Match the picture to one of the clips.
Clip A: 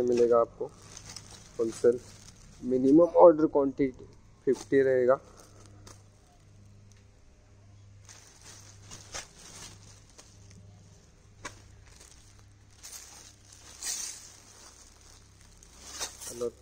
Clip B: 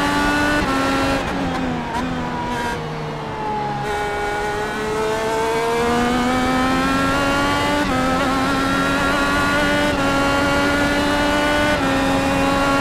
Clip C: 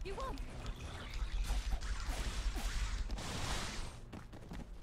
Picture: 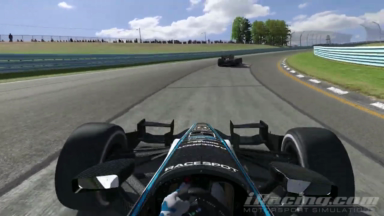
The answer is B